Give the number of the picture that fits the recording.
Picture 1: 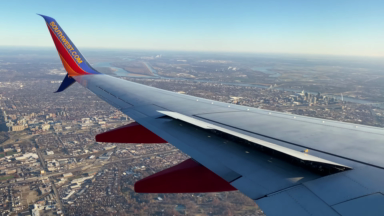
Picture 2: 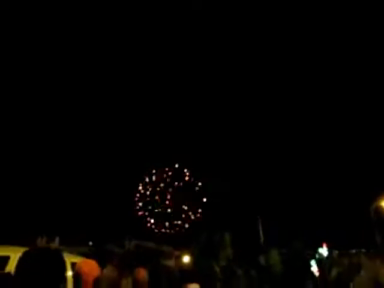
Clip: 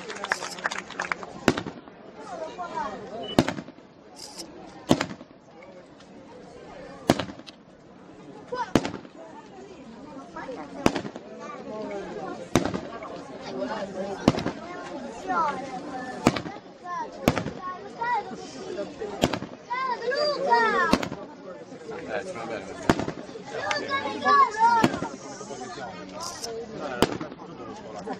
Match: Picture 2